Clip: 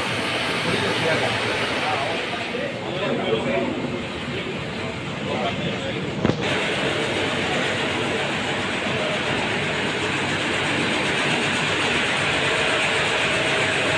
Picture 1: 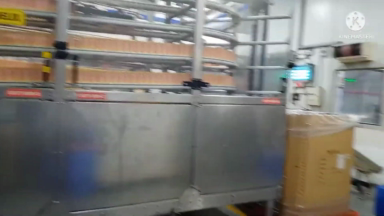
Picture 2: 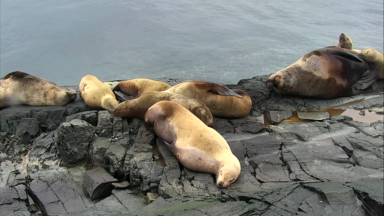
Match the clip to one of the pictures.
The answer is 1